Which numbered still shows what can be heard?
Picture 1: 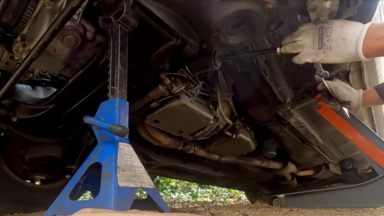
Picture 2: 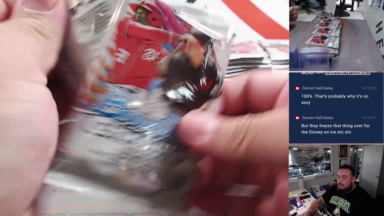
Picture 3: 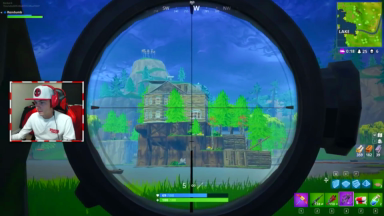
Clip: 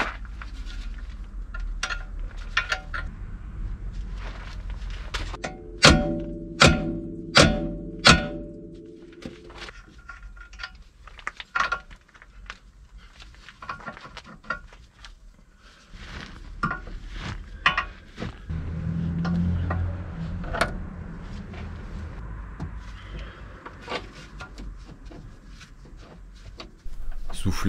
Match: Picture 1